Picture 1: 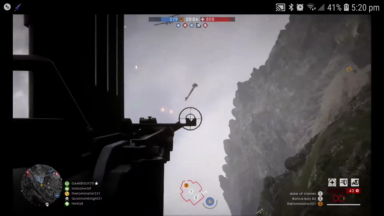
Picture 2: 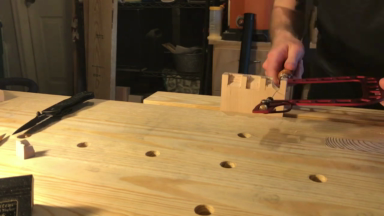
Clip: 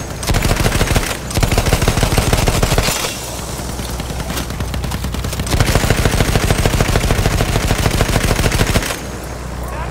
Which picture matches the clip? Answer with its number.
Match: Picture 1